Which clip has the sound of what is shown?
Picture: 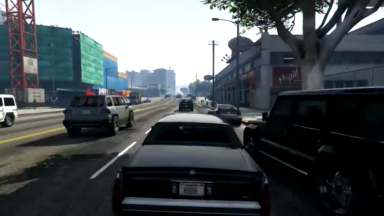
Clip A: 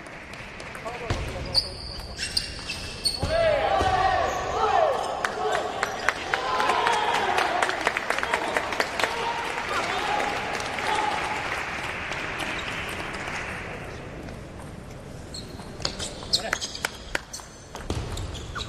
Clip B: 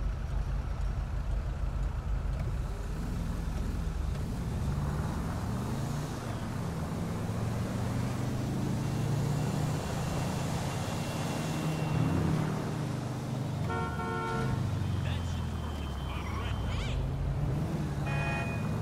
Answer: B